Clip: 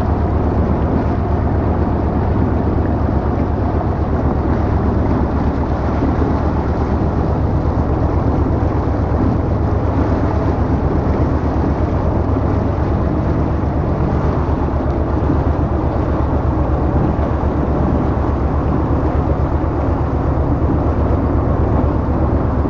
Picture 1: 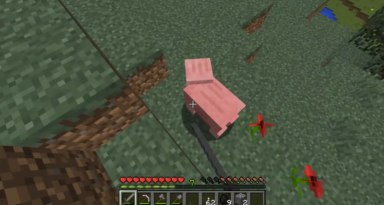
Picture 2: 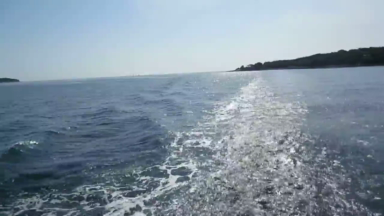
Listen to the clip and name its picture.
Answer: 2